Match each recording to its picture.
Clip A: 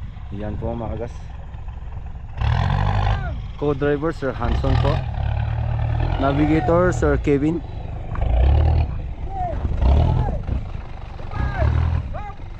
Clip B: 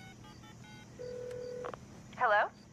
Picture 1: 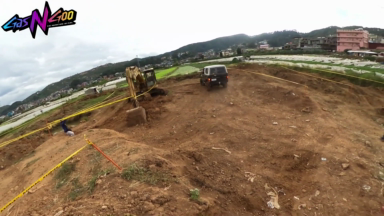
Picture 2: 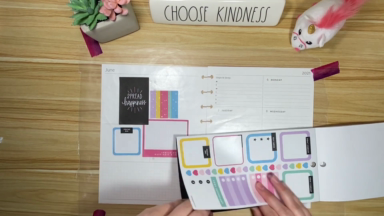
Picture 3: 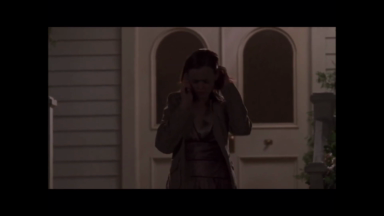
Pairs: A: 1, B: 3